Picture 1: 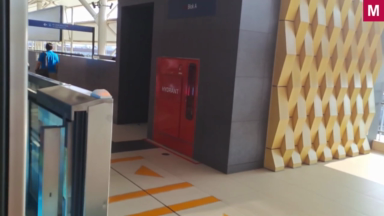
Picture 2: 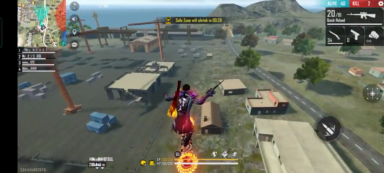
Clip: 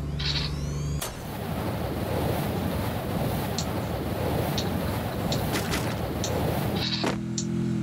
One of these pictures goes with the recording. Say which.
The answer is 2